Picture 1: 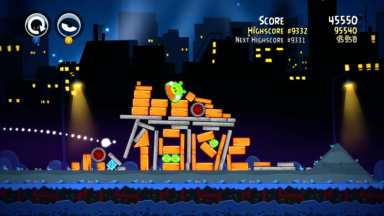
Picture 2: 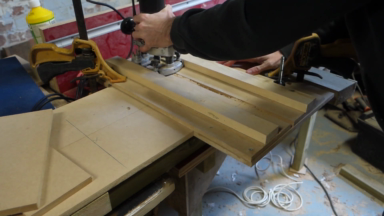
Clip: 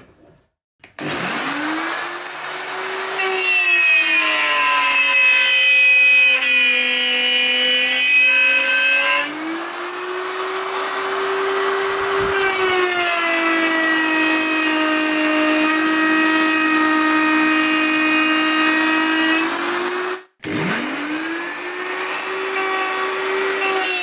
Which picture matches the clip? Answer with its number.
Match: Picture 2